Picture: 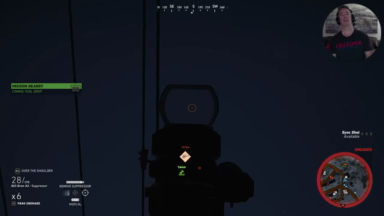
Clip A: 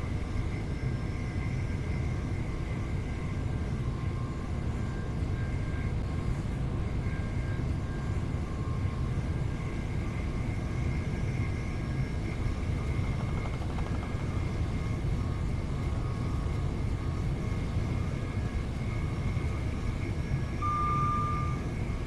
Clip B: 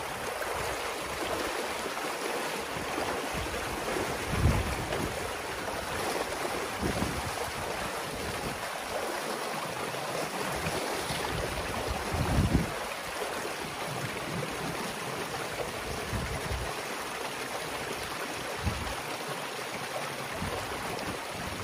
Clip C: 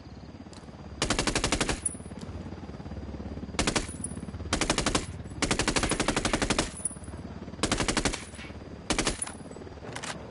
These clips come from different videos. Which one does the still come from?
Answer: C